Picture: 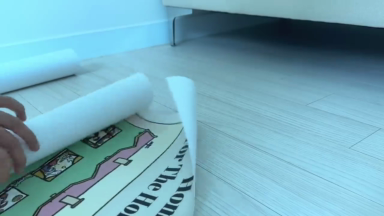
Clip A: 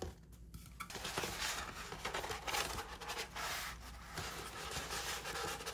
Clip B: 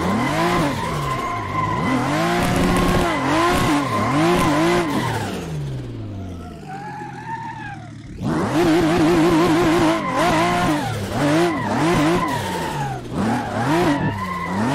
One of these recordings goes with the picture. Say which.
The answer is A